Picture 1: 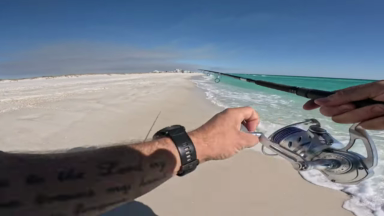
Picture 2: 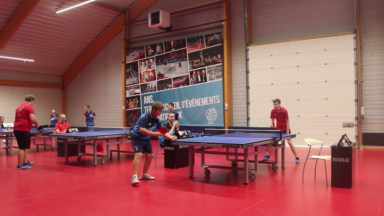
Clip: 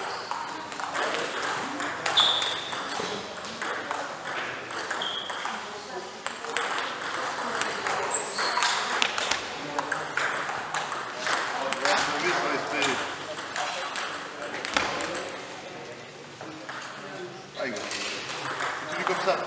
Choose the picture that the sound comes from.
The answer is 2